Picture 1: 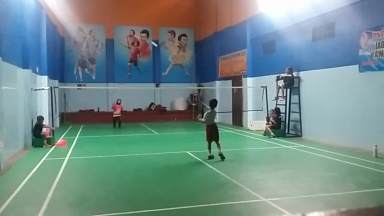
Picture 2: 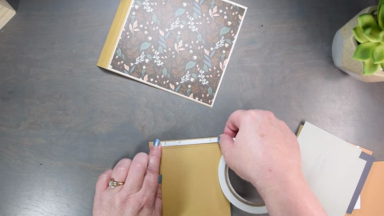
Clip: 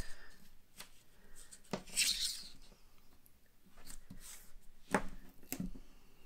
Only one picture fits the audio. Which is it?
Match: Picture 2